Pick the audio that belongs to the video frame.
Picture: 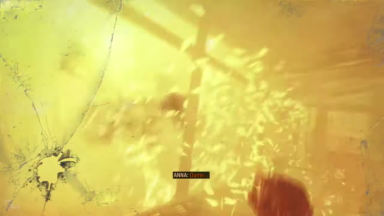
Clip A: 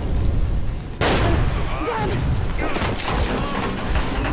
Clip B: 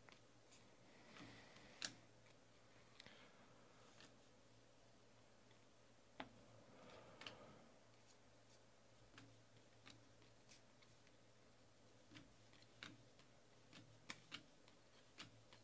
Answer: A